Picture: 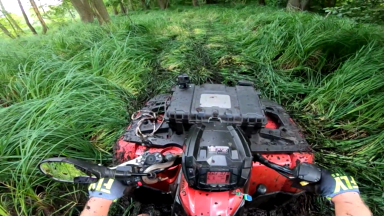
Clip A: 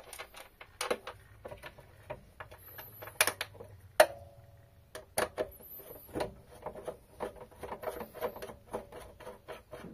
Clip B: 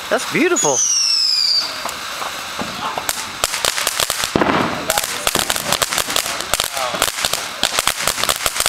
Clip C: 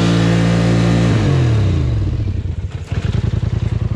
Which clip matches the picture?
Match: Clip C